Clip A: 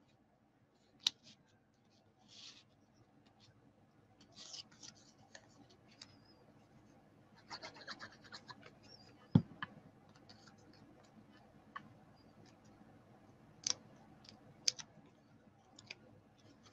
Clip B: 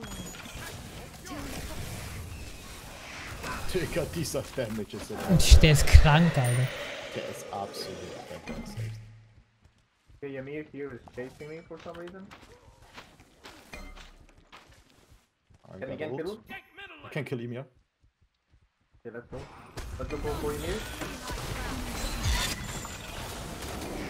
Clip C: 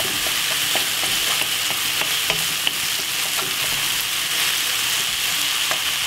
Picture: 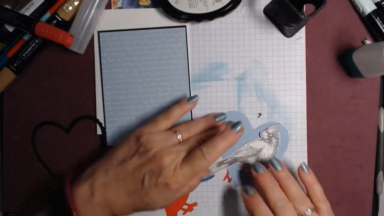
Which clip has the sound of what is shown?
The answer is A